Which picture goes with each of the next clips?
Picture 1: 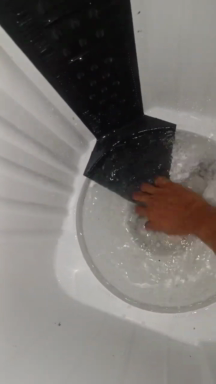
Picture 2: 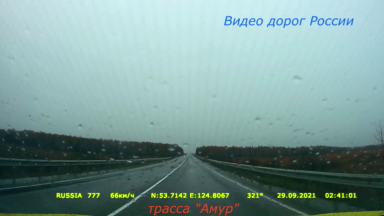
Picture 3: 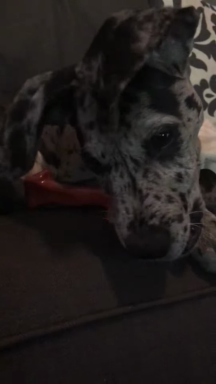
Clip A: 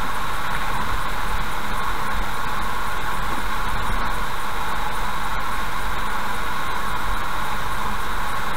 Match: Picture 2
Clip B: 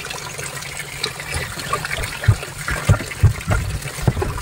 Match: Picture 1